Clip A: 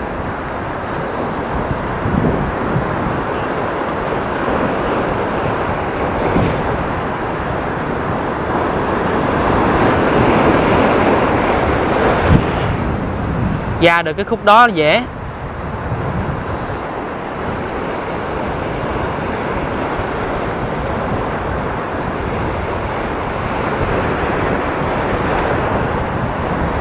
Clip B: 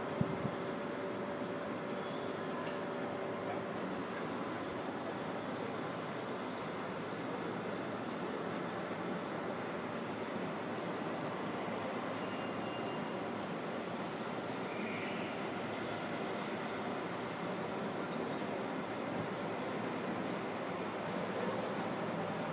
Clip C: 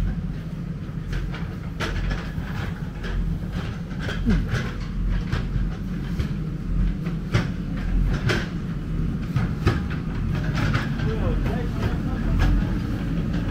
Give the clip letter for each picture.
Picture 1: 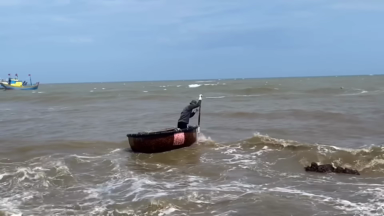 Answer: A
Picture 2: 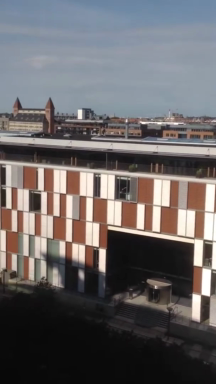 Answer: B